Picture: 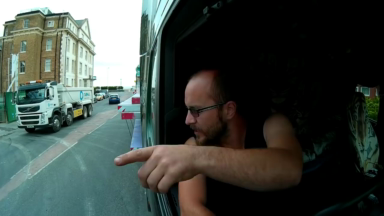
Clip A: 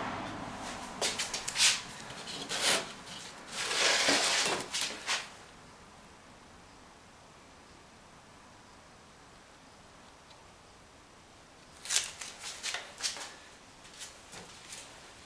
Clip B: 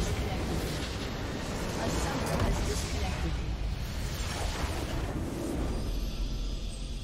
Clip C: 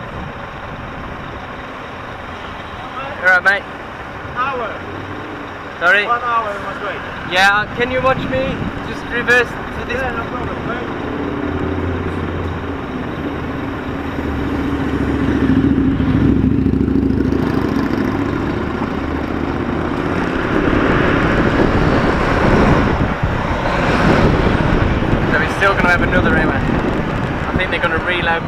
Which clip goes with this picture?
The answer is C